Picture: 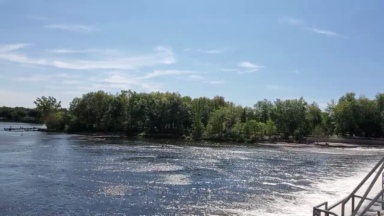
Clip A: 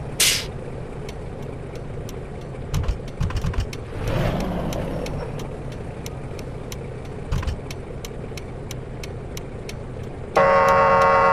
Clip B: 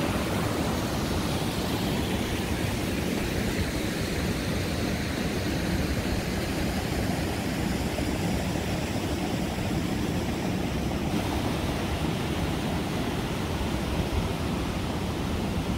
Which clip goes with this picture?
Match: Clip B